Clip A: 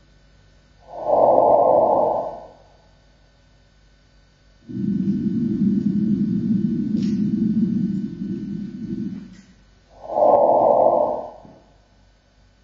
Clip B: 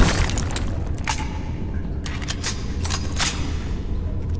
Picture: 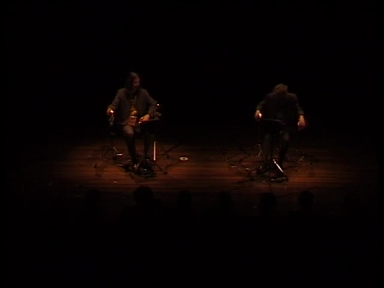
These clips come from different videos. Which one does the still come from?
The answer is A